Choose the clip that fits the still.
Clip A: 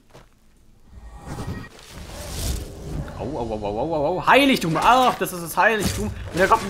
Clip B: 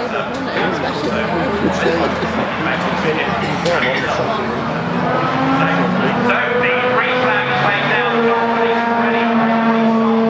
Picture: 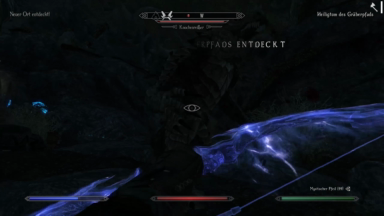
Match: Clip A